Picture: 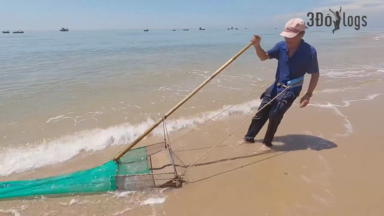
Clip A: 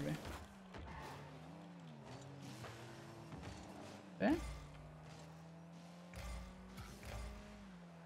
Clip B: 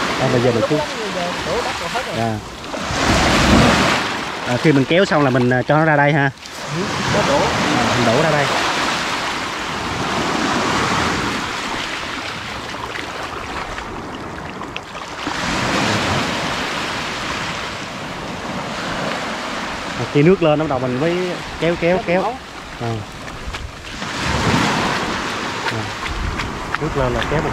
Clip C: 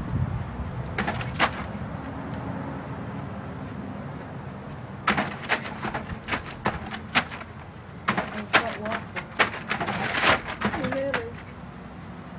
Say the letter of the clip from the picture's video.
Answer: B